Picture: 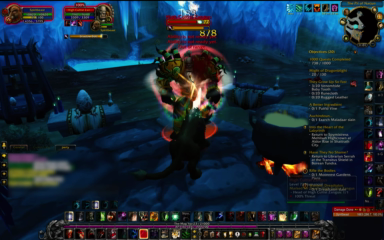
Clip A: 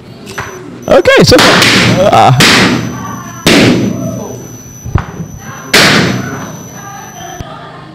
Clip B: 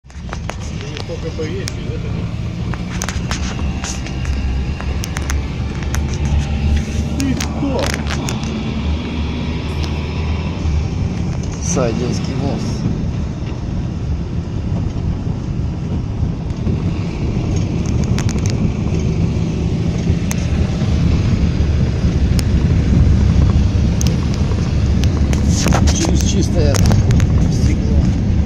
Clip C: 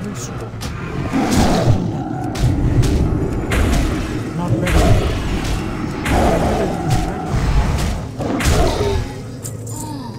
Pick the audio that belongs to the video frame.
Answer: C